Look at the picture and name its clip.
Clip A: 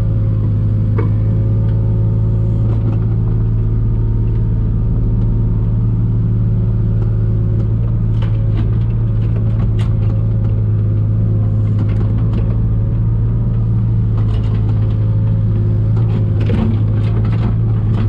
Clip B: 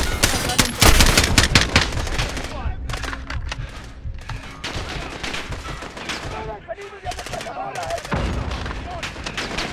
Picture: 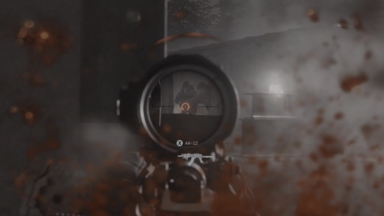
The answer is B